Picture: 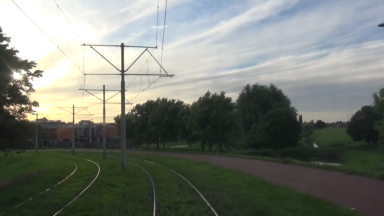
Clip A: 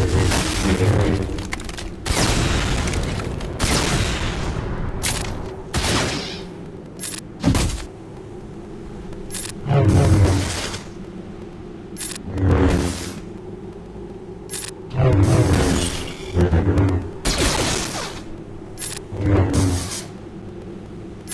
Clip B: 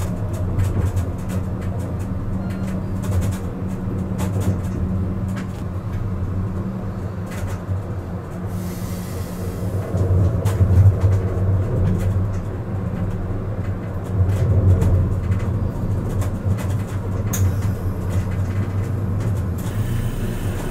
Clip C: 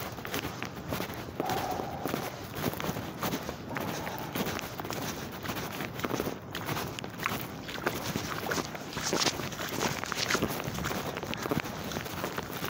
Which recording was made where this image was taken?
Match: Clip B